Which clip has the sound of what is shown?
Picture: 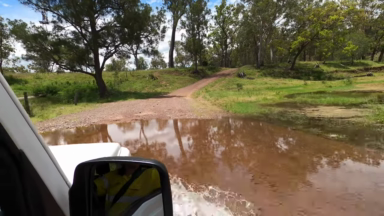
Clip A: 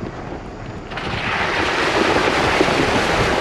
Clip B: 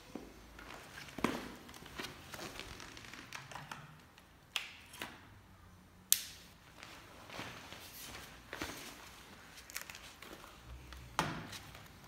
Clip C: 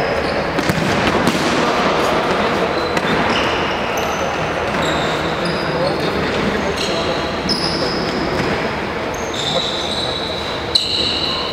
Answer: A